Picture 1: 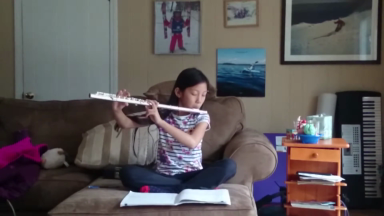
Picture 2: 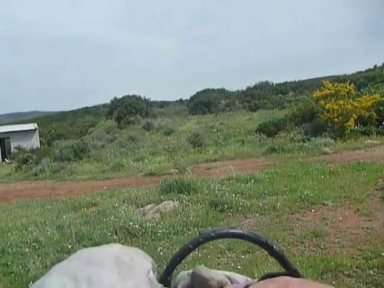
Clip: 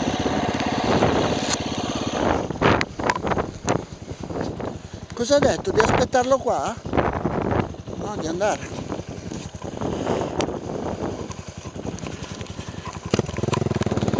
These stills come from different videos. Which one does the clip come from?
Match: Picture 2